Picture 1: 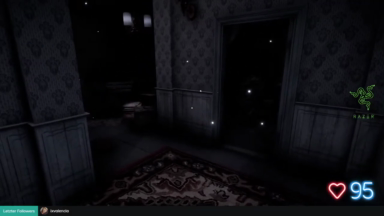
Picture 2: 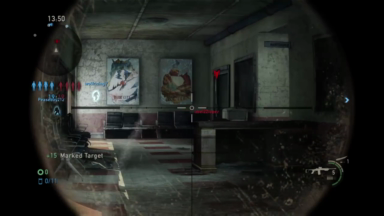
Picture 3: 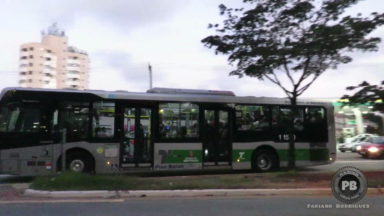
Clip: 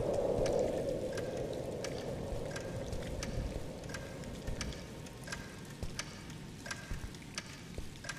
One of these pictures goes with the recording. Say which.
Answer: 1